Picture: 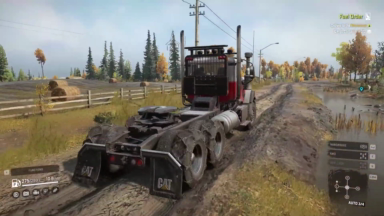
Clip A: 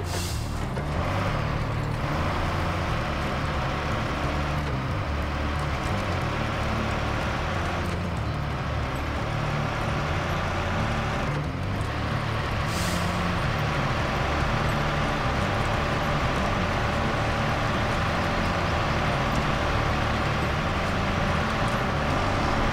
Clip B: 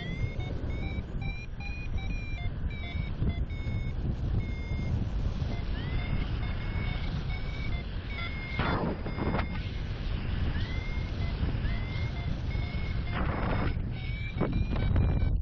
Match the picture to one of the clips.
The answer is A